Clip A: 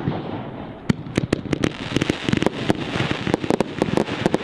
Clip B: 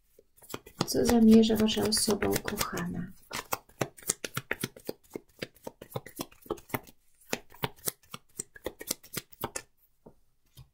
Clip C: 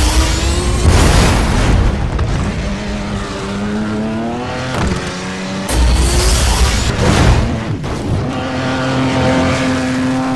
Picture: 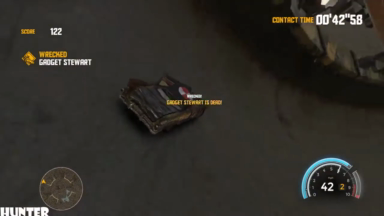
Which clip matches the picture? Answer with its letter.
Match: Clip C